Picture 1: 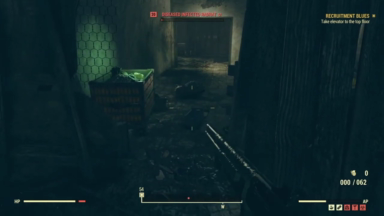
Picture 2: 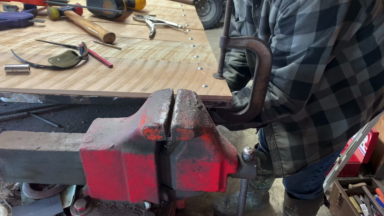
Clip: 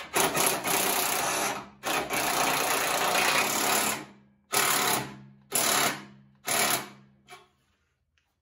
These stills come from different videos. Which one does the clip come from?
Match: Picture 2